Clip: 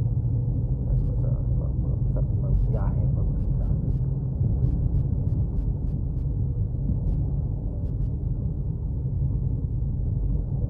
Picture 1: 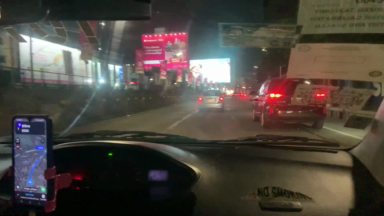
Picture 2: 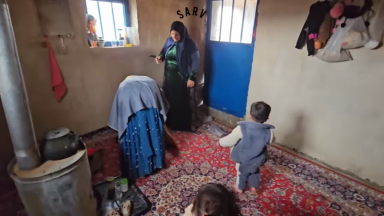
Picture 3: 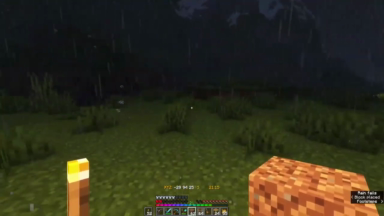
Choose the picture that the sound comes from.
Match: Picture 1